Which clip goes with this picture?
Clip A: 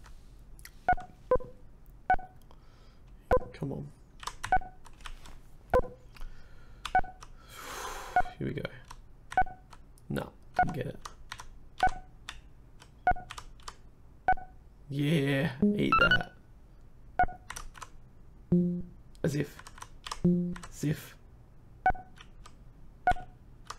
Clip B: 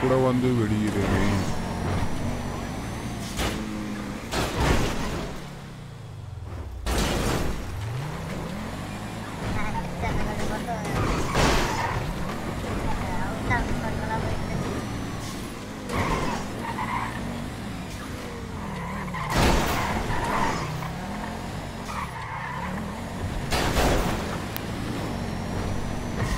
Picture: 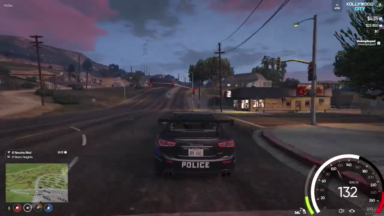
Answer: B